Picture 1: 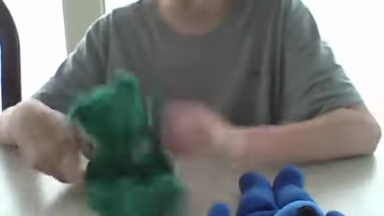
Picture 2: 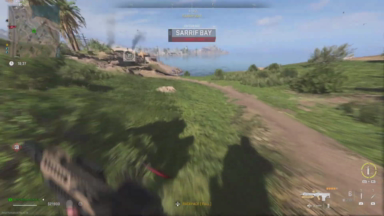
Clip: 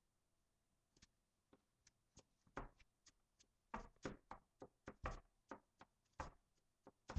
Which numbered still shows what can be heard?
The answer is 1